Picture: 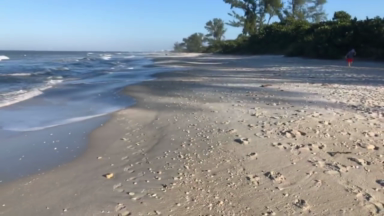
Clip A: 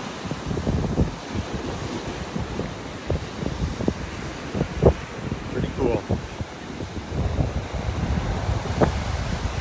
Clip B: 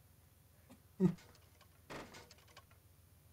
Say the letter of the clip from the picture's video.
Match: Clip A